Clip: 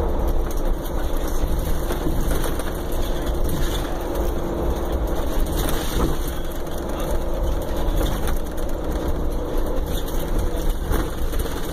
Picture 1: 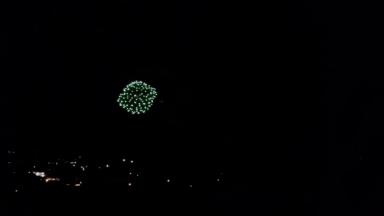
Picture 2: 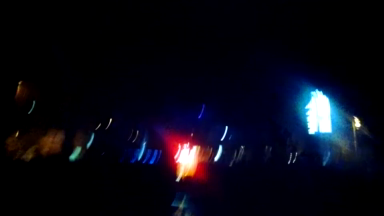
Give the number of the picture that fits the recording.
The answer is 2